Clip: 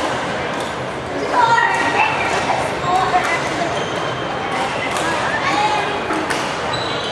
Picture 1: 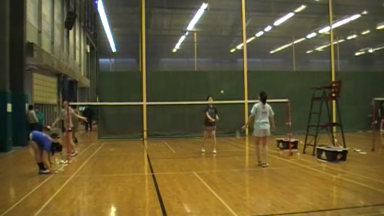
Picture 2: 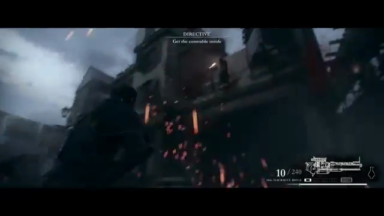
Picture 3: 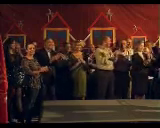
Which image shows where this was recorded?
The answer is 1